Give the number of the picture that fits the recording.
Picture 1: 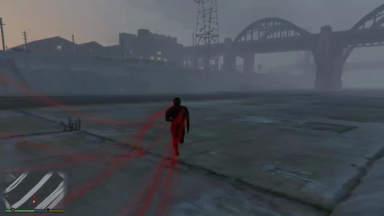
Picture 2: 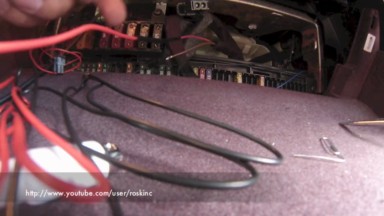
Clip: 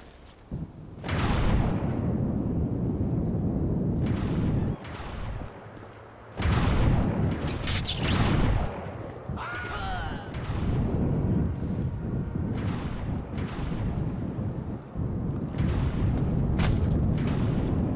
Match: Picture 1